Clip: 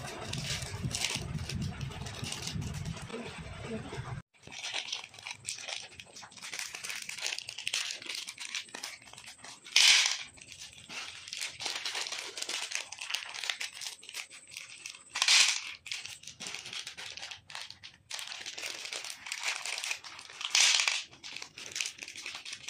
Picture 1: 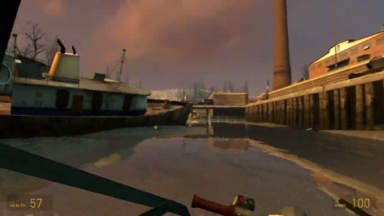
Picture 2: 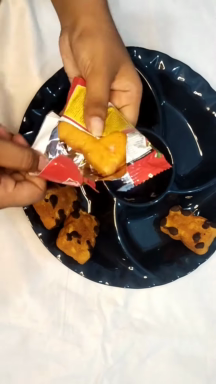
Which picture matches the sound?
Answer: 2